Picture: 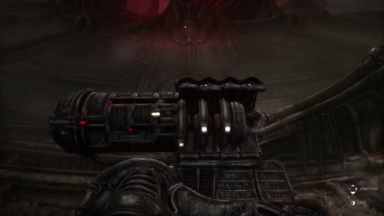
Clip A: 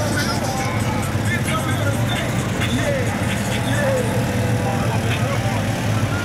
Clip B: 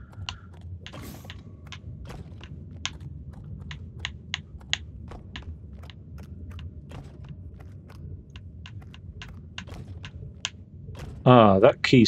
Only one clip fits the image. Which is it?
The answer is B